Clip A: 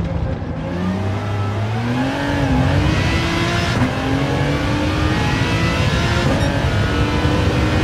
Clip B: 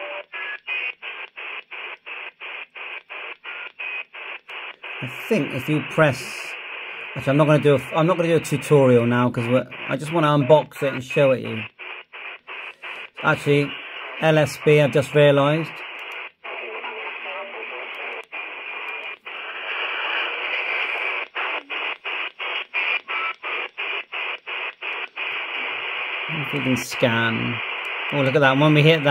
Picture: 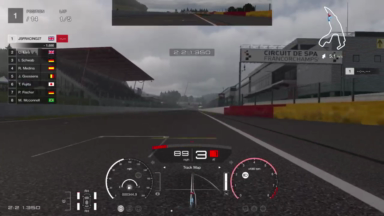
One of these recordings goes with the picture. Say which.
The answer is A